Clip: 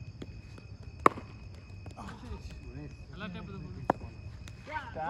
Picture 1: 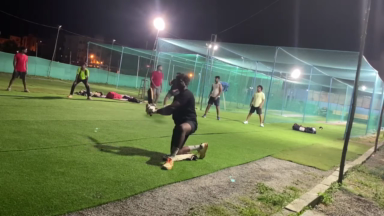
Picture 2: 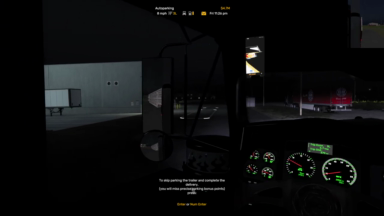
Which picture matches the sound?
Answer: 1